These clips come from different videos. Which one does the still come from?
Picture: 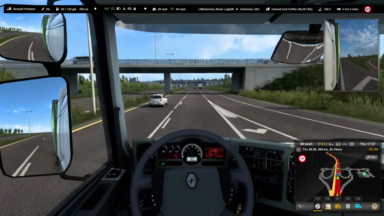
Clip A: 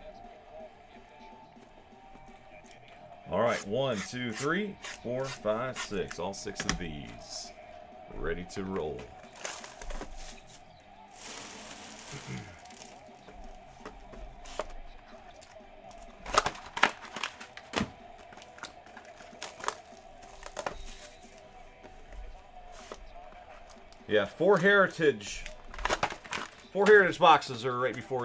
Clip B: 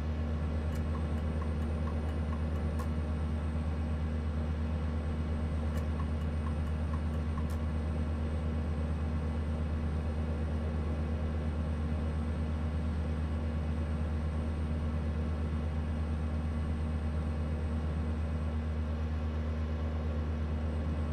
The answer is B